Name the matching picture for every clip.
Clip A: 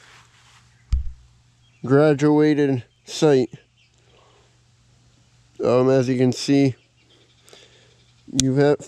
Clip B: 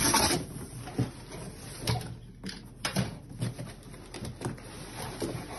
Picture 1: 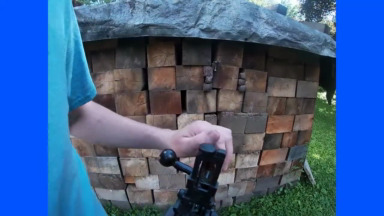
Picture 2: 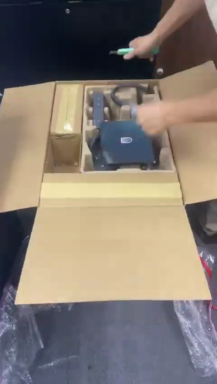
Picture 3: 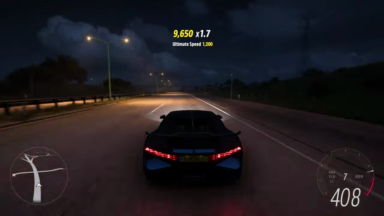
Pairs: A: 1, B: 2